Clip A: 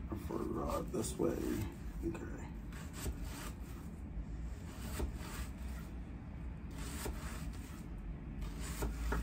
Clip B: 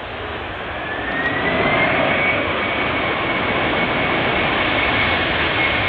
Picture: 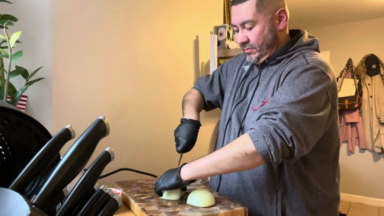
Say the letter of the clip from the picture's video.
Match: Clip A